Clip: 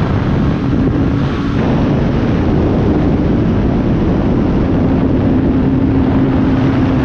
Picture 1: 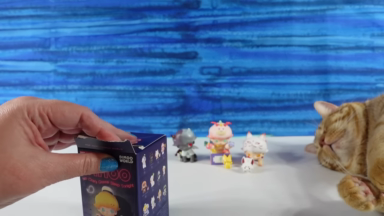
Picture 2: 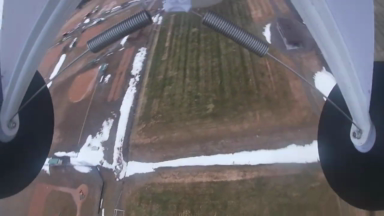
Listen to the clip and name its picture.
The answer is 2